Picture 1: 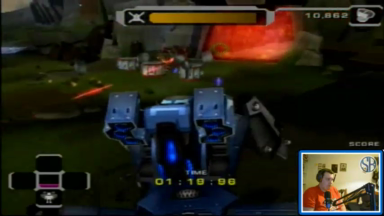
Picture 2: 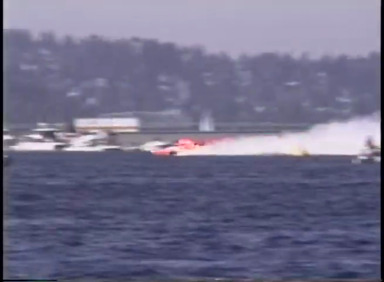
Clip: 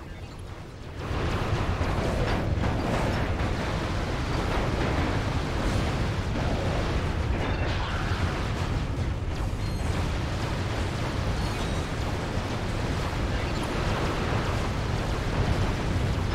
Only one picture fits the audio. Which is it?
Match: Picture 1